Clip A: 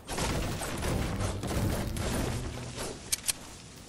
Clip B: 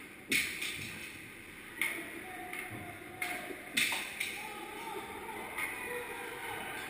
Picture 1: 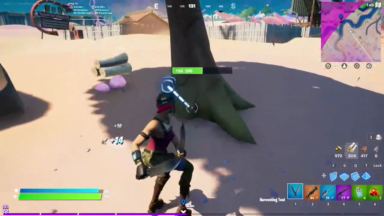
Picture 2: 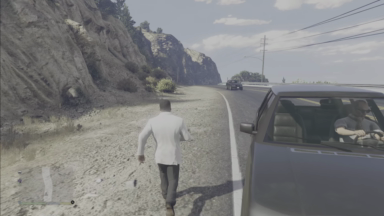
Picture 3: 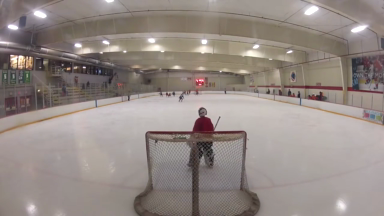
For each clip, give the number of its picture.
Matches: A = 1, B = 3